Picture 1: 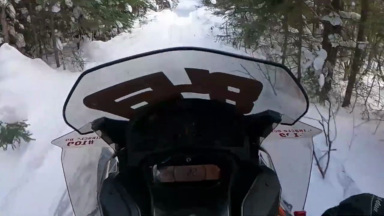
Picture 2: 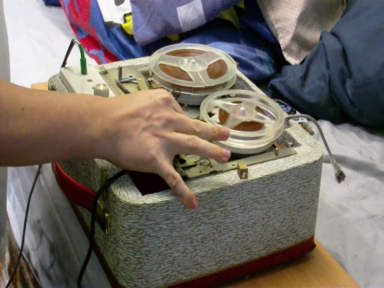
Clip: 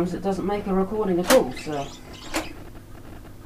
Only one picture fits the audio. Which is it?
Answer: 2